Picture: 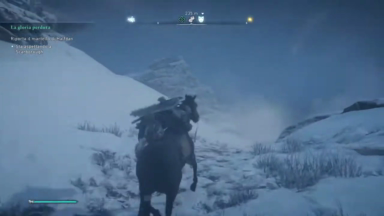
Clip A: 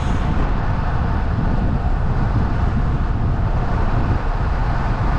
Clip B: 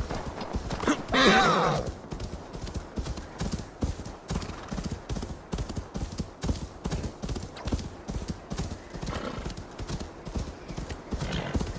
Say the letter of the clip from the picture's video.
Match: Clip B